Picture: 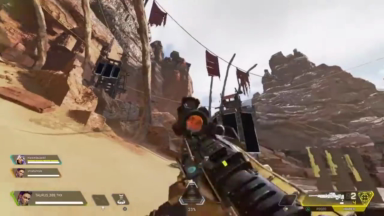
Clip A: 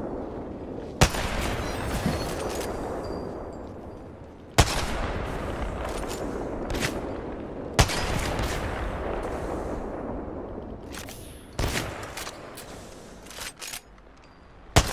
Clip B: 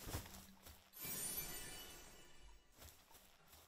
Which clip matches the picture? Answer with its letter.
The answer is A